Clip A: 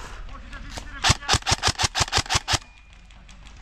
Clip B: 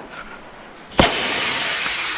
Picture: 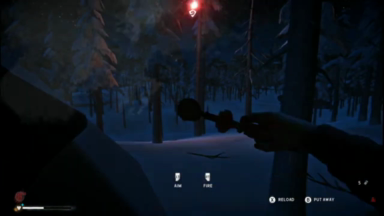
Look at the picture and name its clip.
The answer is B